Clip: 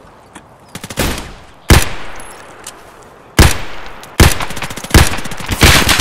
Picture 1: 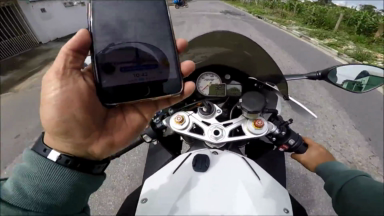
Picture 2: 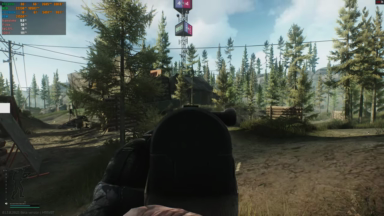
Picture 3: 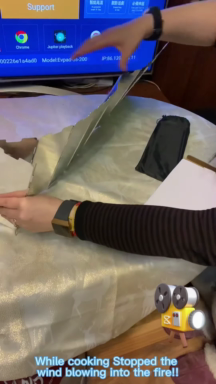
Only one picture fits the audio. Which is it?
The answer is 2